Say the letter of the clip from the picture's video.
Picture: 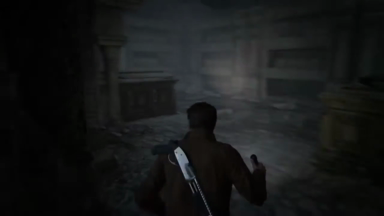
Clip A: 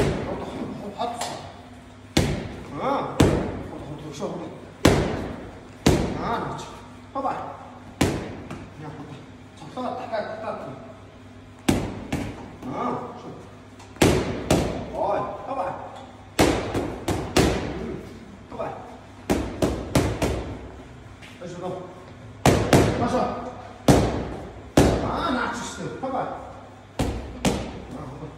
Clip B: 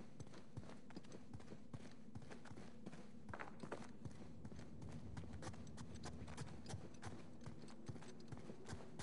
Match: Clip B